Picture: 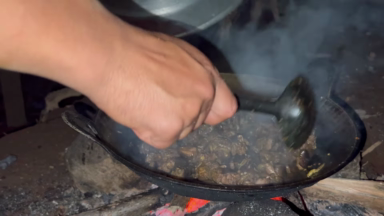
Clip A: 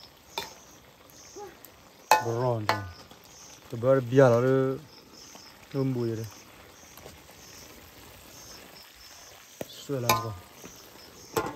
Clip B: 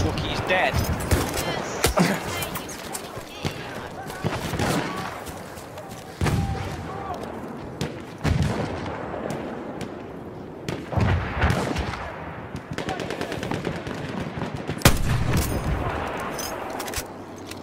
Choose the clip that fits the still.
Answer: A